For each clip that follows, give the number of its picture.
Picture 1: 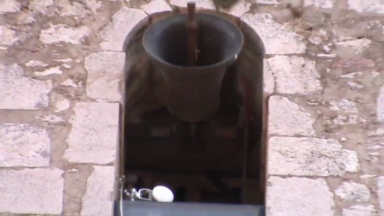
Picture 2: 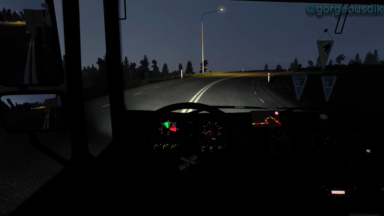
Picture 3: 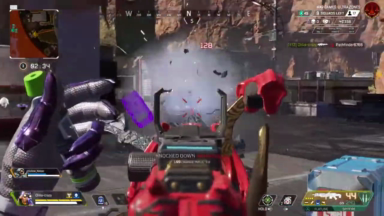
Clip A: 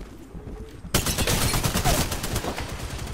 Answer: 3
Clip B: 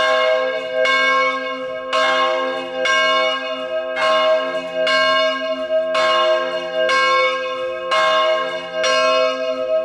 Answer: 1